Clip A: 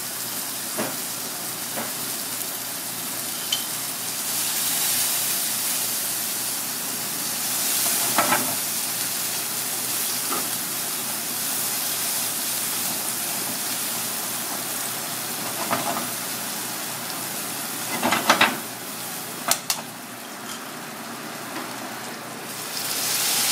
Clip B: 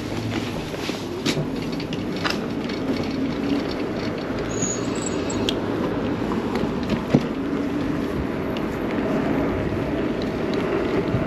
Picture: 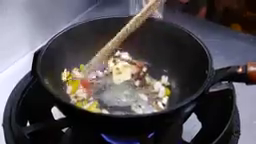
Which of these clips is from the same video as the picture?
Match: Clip A